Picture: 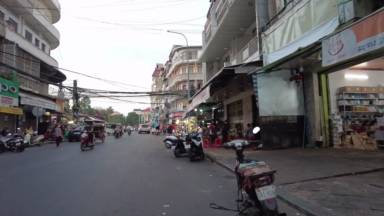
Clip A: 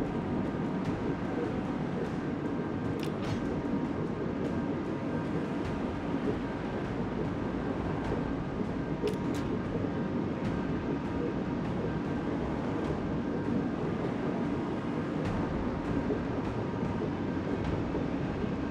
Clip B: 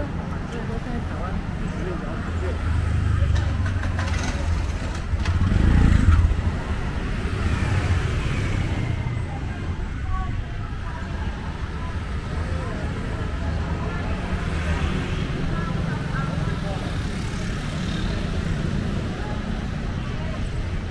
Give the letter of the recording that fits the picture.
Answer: B